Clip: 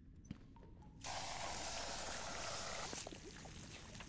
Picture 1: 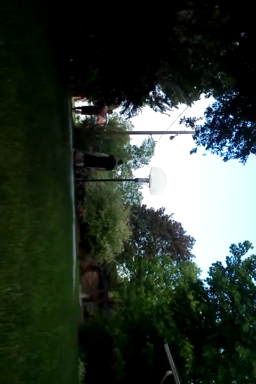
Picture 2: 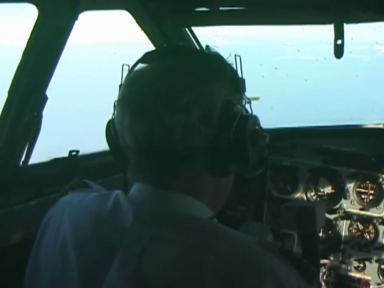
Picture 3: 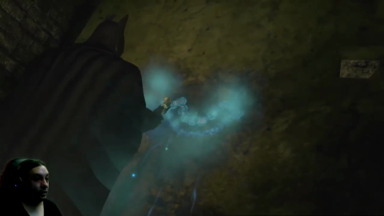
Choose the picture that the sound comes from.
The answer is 3